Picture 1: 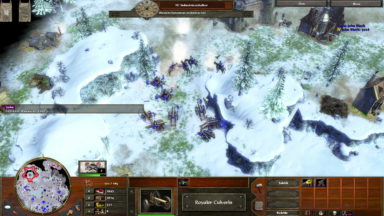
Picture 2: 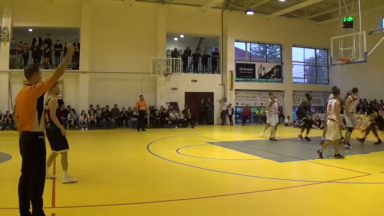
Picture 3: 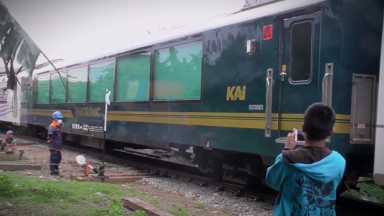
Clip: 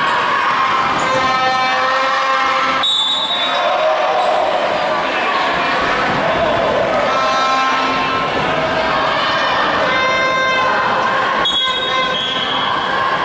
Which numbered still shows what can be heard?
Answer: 2